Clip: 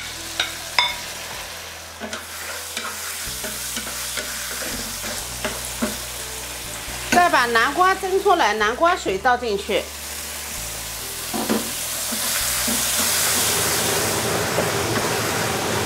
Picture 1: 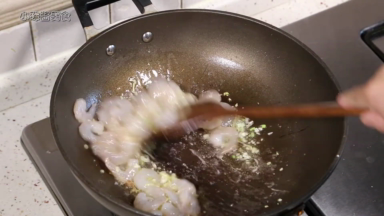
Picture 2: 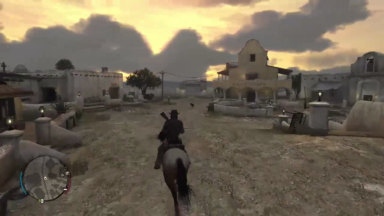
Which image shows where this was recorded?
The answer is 1